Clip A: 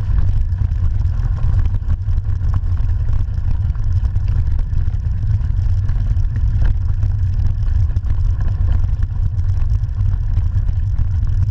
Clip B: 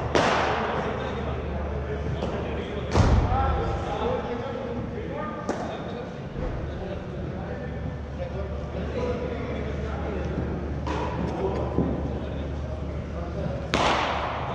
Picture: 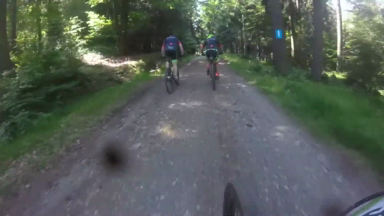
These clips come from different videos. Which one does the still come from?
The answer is A